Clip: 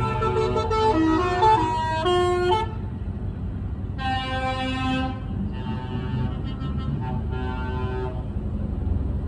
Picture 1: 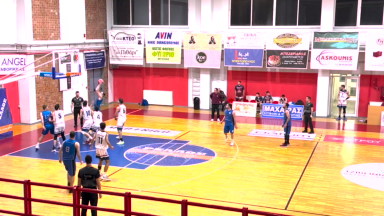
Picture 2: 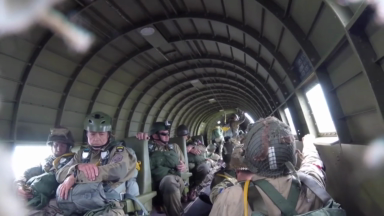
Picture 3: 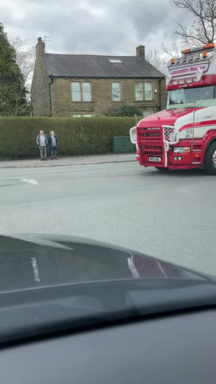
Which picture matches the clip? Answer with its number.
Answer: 3